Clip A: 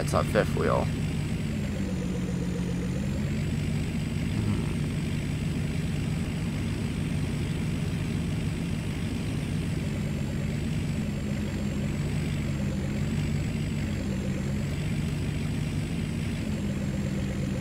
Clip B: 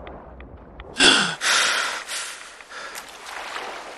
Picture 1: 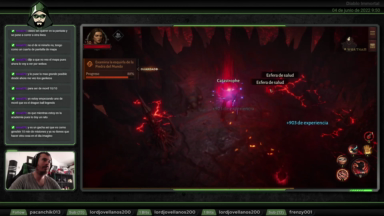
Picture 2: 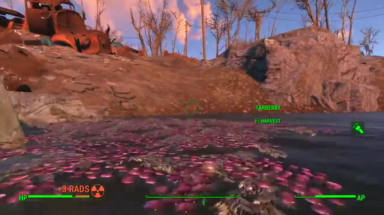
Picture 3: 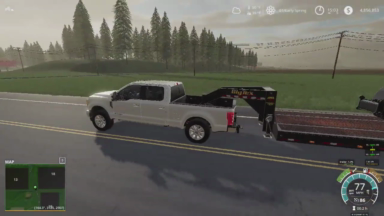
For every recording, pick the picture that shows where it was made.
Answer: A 3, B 2